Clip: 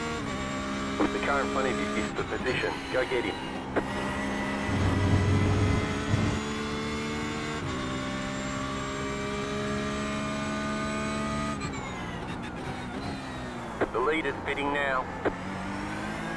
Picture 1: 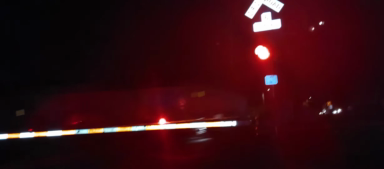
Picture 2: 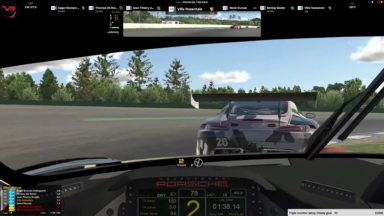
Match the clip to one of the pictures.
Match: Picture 2